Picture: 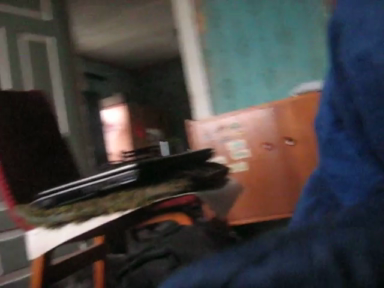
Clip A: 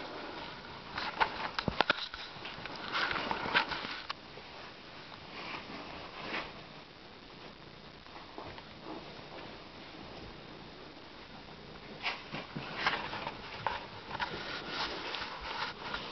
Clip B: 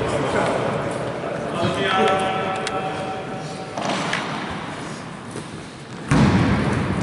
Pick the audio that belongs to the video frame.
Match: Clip A